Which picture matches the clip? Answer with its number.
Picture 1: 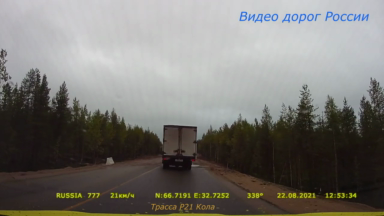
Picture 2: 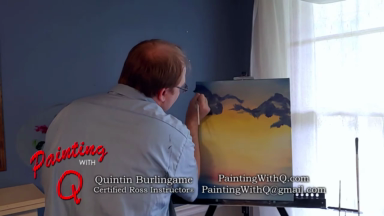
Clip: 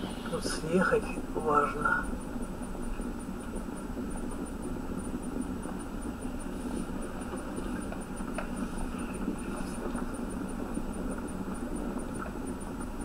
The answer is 1